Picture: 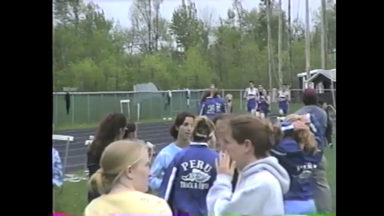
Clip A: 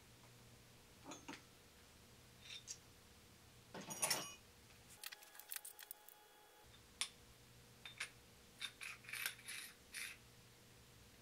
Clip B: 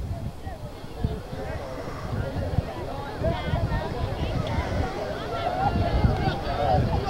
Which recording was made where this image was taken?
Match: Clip B